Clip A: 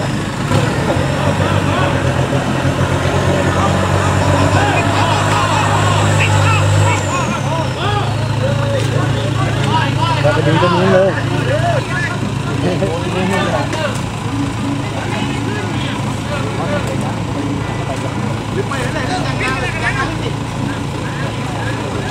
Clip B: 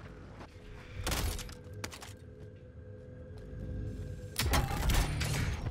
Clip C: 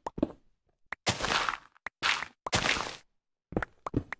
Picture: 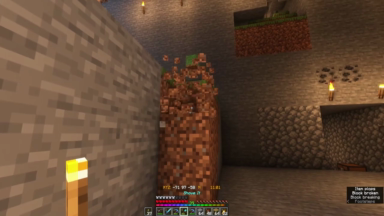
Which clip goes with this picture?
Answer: C